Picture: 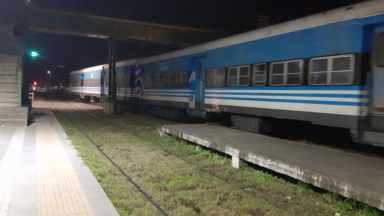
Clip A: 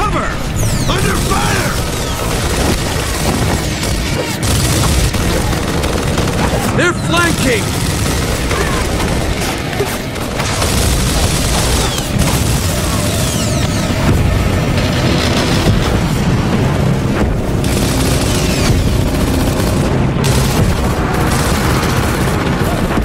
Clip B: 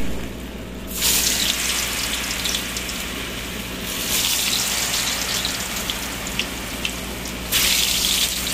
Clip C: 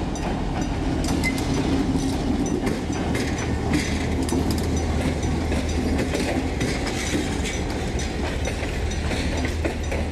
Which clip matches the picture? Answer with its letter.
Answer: C